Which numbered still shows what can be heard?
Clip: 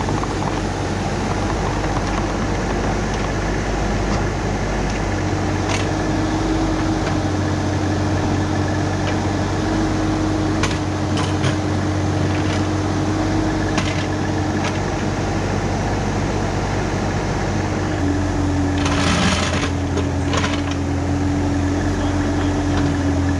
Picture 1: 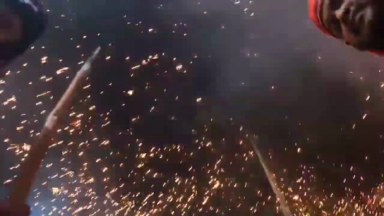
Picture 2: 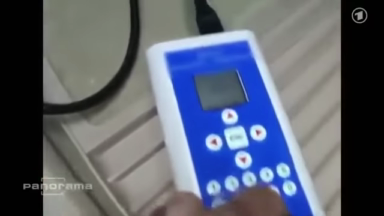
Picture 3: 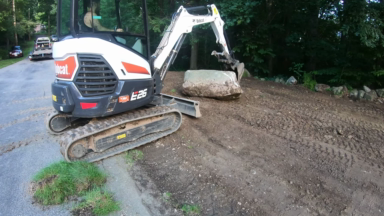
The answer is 3